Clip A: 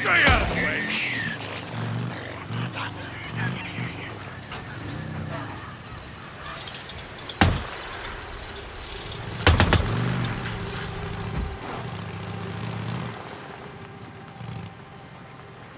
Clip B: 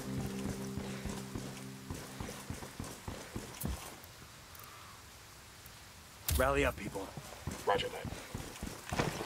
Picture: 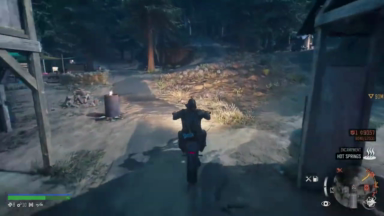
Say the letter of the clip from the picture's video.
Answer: A